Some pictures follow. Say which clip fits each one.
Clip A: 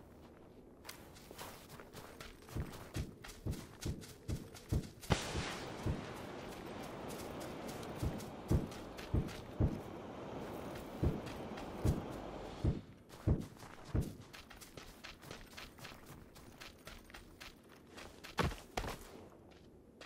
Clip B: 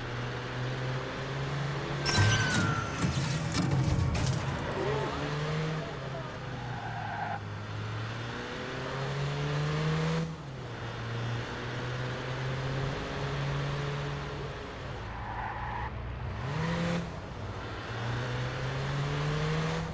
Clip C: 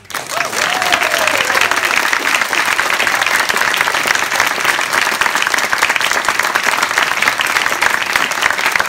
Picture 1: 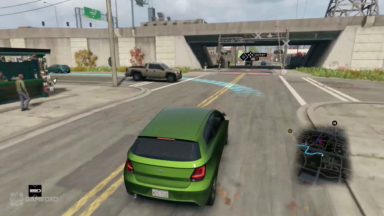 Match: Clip B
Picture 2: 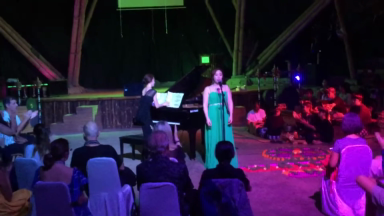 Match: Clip C